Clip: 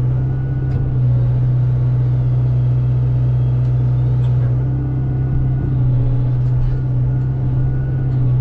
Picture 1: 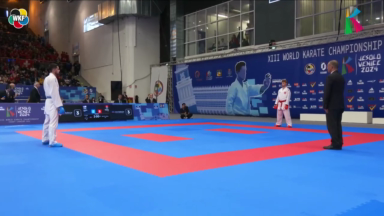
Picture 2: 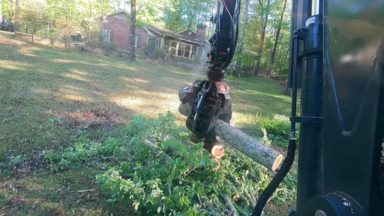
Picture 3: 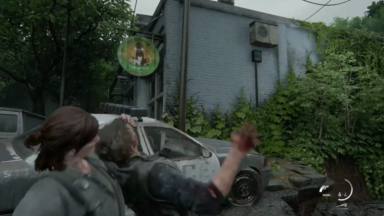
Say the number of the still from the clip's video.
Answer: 2